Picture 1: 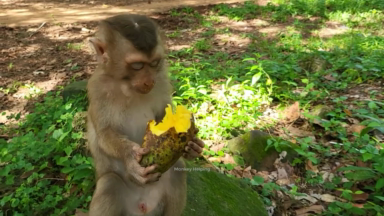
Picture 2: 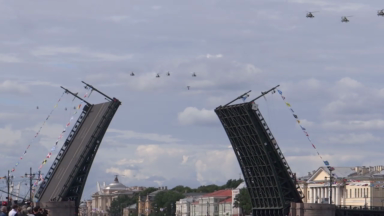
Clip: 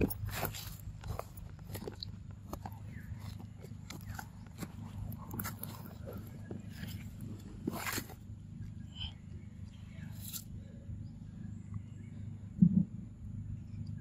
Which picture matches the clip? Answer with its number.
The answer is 1